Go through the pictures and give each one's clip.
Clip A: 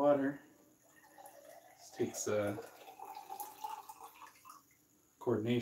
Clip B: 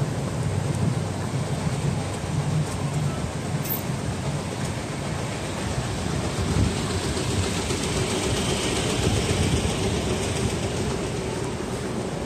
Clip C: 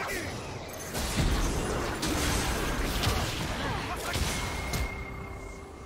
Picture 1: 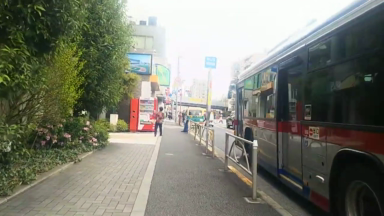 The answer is B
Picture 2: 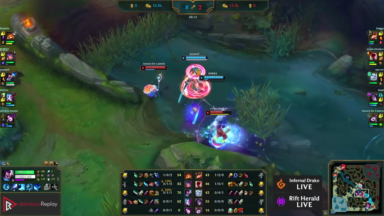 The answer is C